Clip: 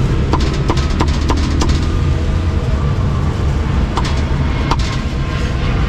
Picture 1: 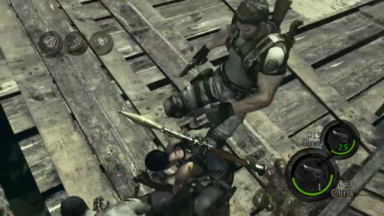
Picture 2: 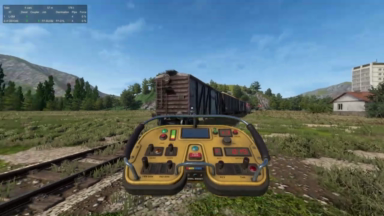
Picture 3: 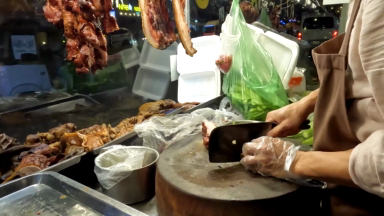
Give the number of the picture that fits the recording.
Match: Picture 3